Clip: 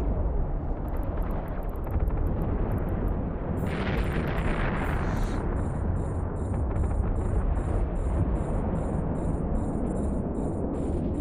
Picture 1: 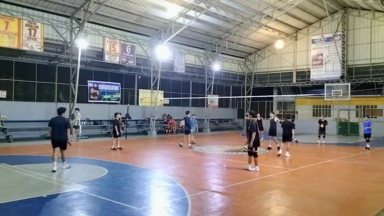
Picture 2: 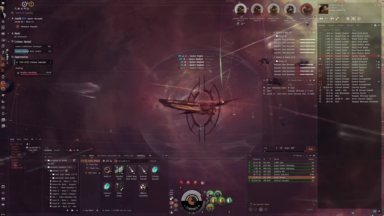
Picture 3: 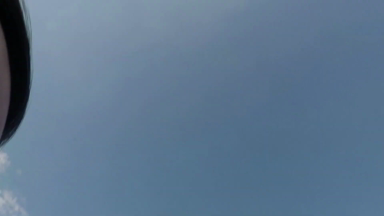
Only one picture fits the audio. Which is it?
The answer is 2